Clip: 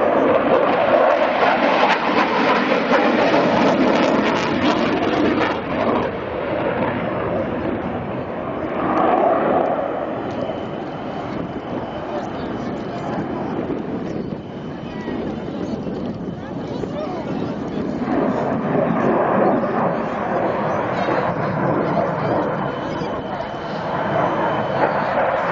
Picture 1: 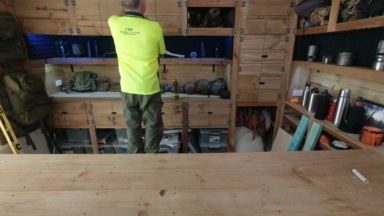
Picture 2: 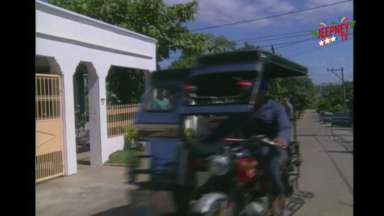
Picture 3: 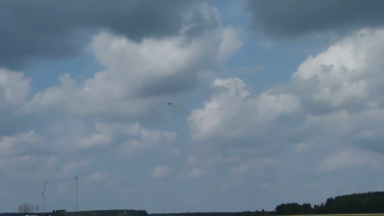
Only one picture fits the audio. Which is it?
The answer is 3